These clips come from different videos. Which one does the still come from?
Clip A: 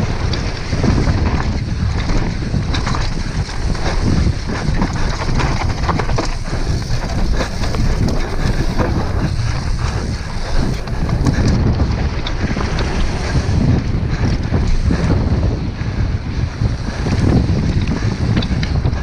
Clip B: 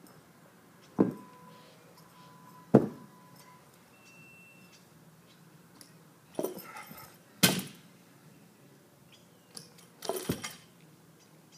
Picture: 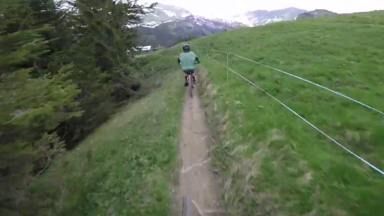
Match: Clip A